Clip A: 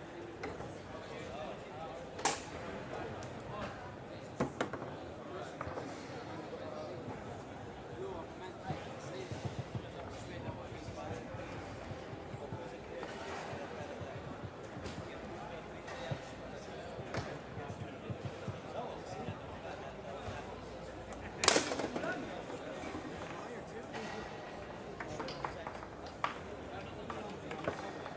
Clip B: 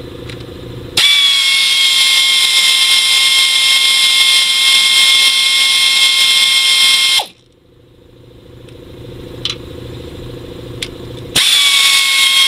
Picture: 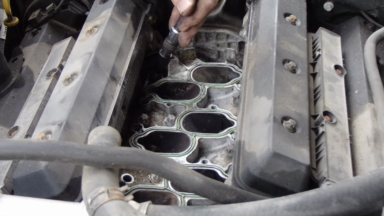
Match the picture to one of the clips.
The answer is B